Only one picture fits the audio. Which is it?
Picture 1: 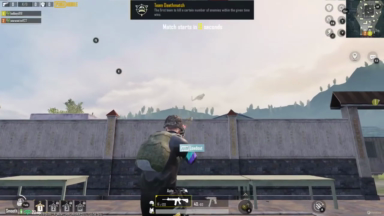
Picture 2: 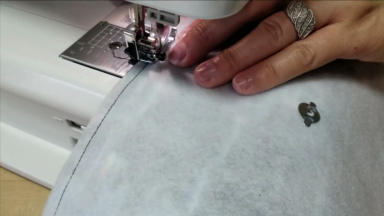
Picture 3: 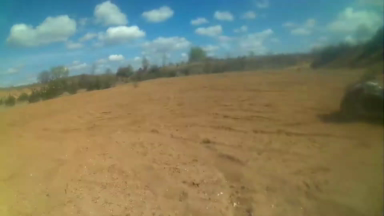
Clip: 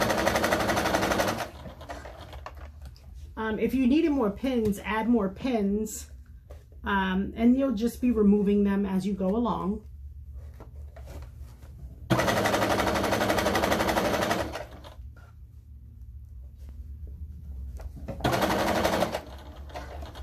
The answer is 2